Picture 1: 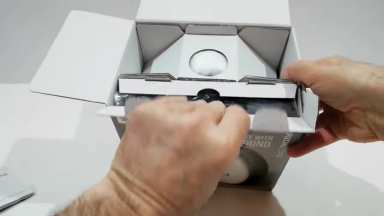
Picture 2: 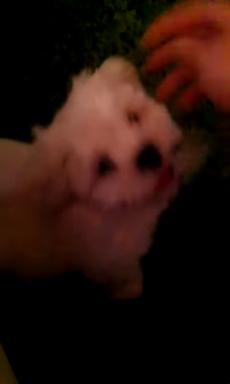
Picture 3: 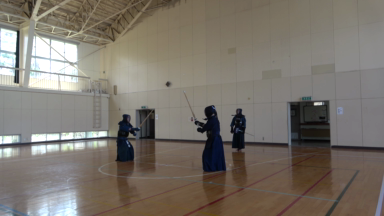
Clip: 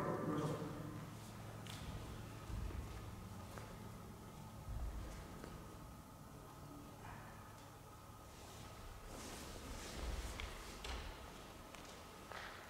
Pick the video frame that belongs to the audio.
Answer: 3